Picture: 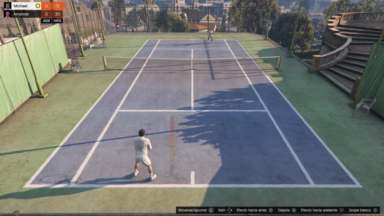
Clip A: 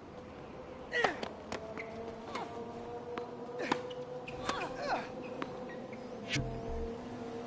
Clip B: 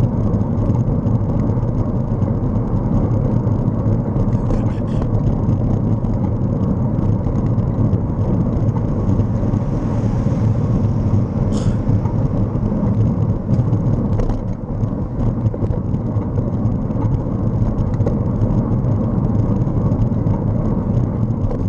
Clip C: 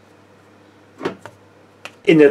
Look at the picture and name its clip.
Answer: A